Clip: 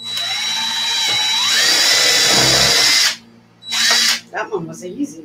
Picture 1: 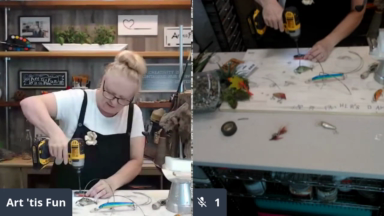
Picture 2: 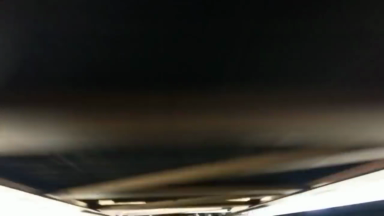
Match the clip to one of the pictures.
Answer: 1